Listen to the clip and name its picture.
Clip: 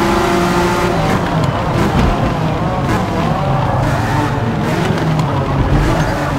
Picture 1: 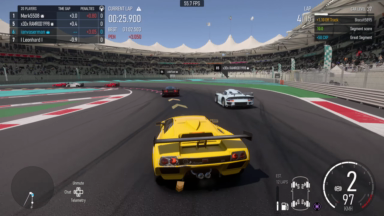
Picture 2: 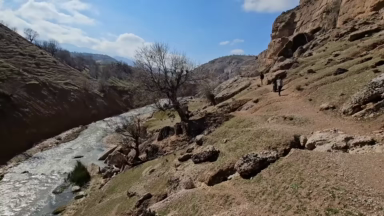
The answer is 1